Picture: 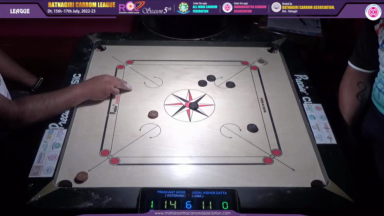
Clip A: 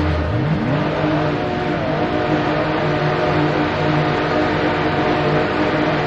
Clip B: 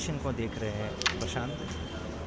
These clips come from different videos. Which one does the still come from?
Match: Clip B